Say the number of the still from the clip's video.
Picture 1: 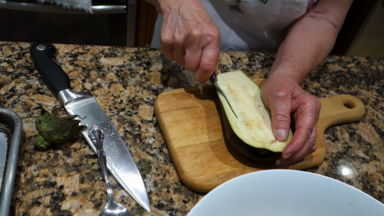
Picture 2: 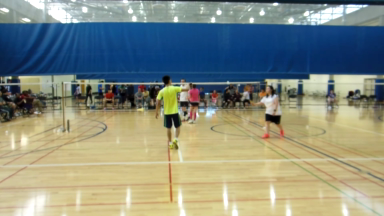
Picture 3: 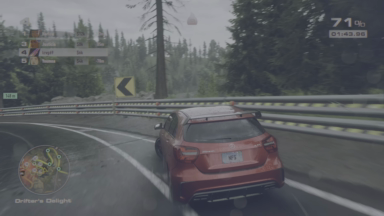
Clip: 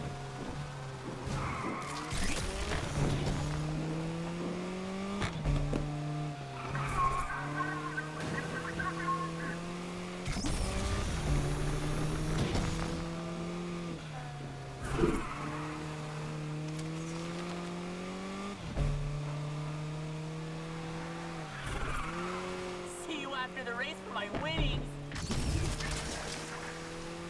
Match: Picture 3